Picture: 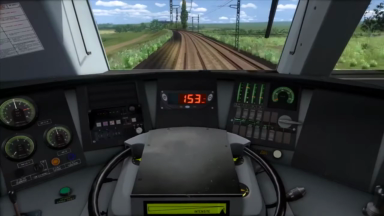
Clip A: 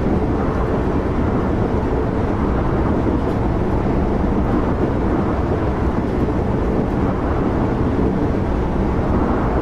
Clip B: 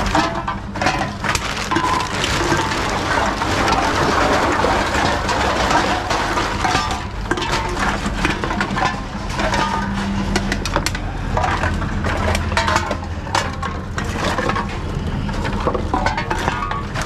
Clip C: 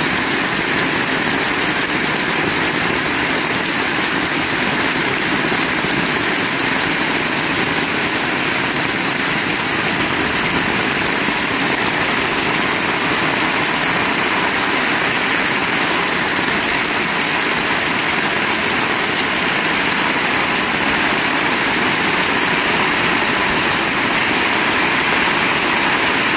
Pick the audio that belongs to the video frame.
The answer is A